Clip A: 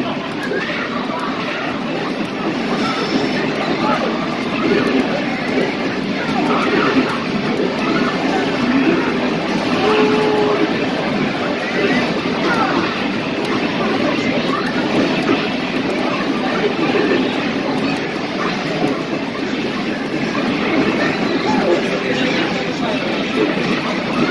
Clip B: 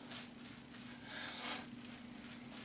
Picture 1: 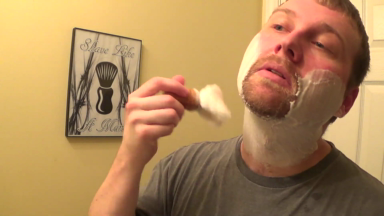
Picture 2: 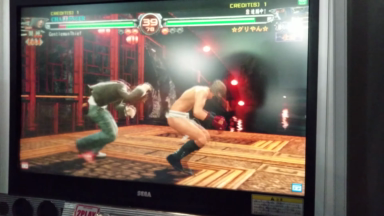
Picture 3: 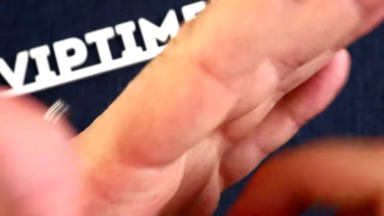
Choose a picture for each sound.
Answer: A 2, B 1